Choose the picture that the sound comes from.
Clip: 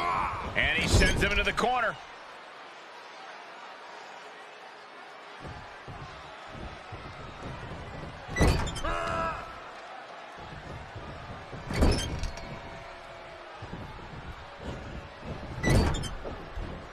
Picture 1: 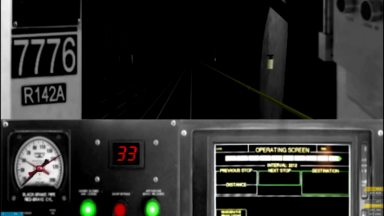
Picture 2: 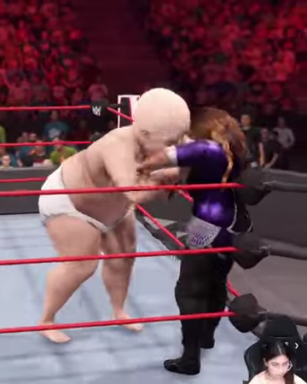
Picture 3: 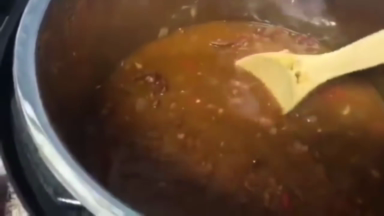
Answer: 2